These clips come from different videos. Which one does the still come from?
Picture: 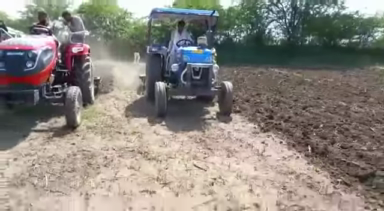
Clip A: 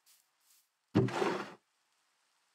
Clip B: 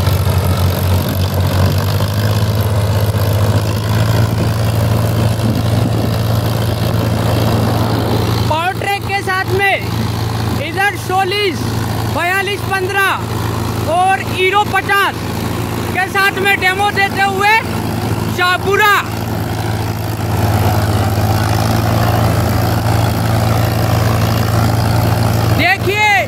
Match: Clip B